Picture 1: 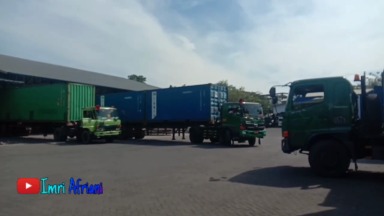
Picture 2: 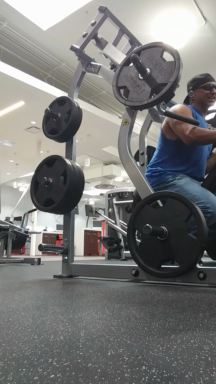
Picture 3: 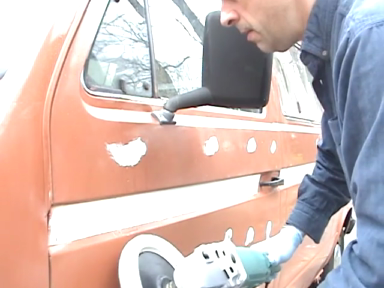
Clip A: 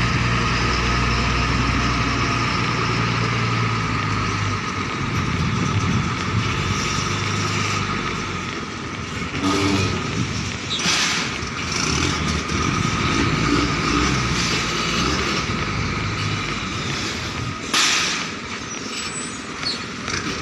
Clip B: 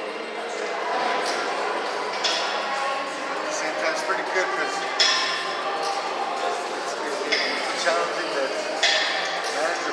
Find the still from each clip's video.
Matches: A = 1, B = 2